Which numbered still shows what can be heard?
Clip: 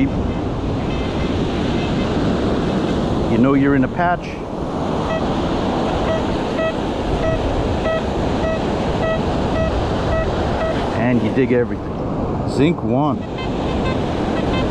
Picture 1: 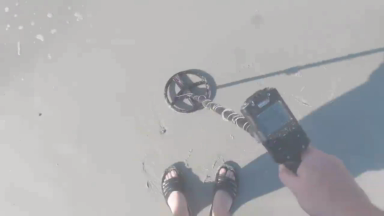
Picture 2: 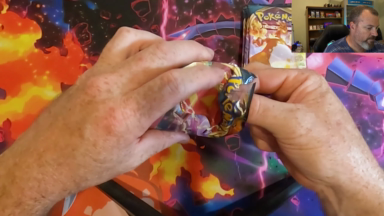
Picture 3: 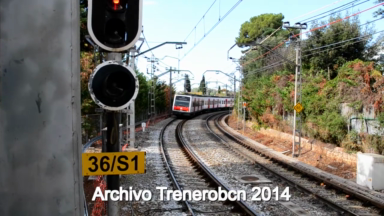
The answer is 1